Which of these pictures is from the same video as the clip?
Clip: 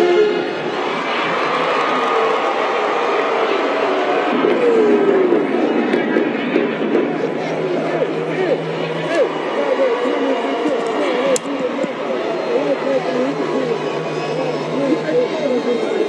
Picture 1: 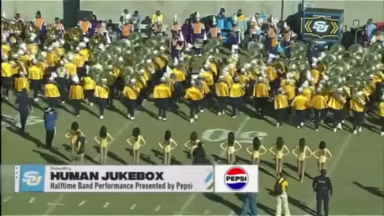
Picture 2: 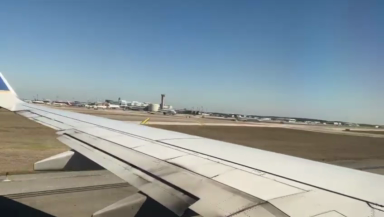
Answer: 1